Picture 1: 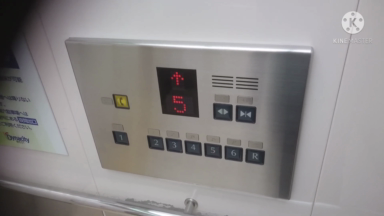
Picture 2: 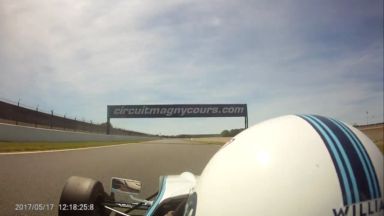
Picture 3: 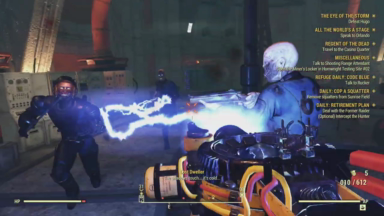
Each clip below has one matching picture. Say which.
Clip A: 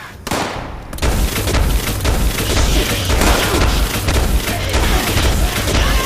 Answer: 3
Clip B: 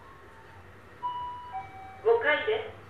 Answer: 1